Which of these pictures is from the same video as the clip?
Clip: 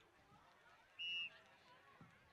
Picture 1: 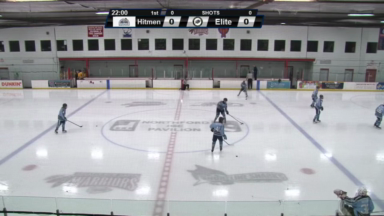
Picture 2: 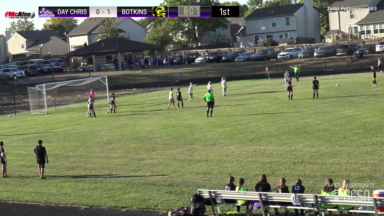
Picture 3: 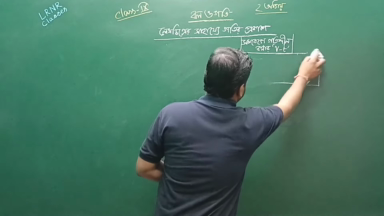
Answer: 2